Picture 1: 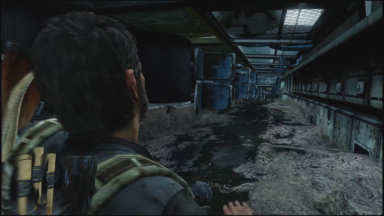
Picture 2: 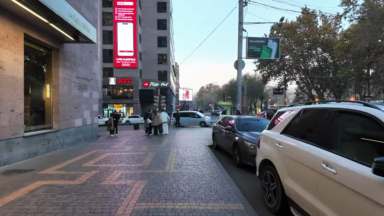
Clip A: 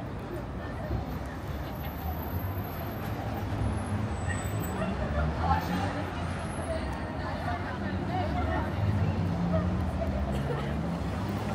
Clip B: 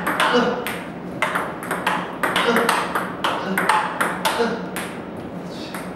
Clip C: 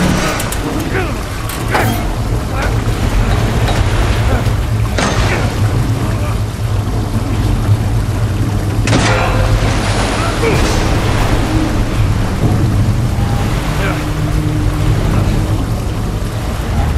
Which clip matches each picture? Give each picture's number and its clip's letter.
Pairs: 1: C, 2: A